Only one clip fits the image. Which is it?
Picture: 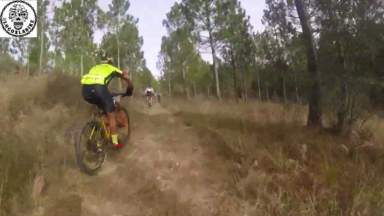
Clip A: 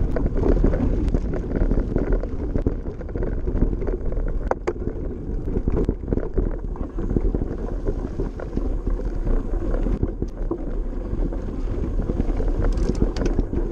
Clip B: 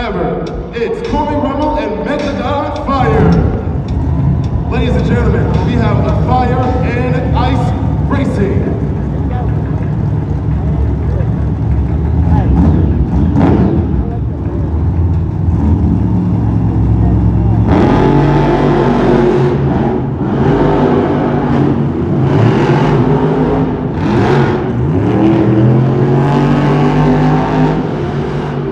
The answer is A